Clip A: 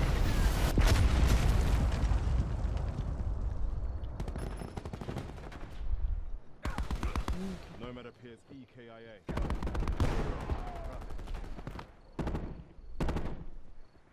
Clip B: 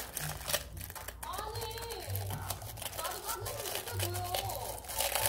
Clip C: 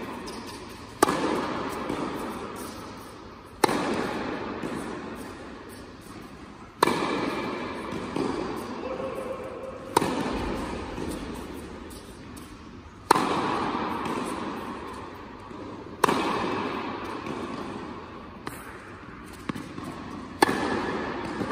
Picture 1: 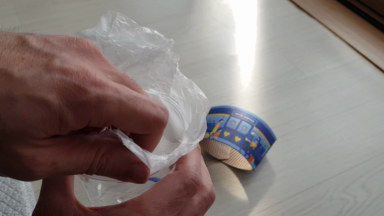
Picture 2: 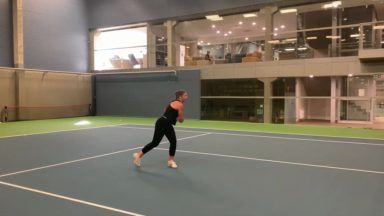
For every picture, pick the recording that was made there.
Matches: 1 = B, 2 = C